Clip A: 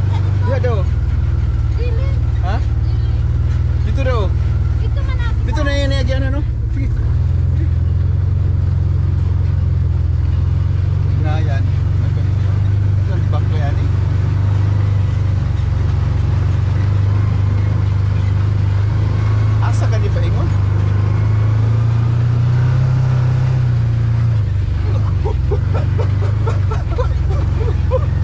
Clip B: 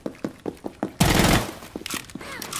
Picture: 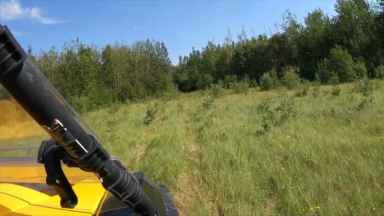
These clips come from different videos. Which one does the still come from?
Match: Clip A